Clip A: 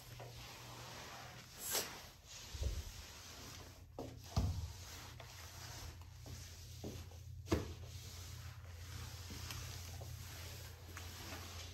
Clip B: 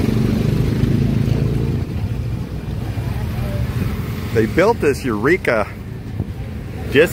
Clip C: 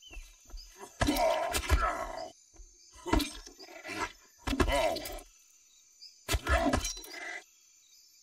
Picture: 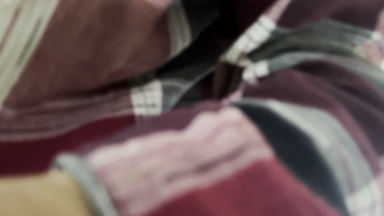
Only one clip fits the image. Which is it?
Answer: A